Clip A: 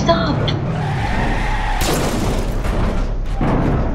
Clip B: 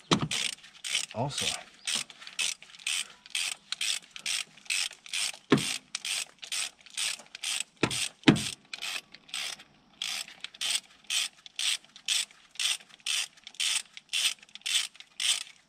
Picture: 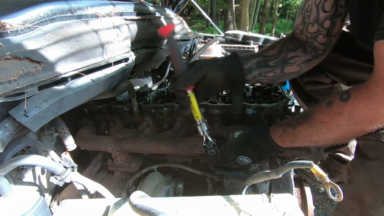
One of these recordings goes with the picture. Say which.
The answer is B